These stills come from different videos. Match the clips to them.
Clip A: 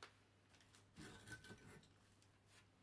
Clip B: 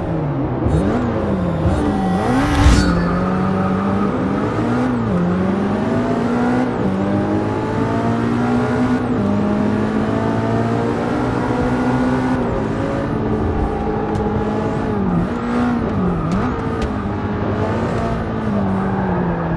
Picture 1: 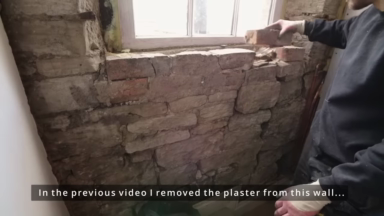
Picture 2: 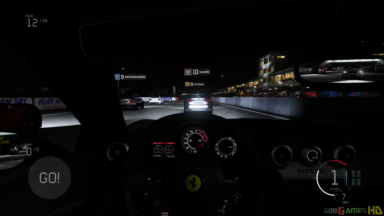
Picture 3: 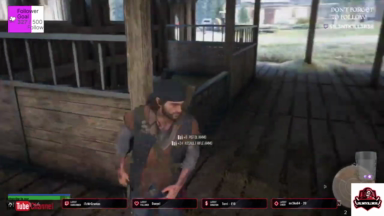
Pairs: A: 1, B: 2